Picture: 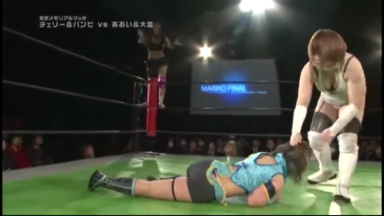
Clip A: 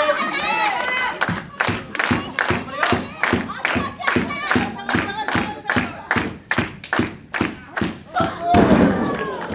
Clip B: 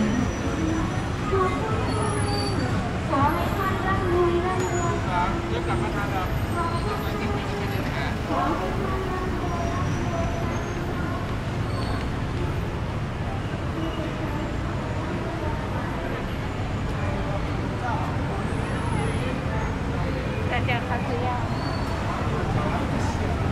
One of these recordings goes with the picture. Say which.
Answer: A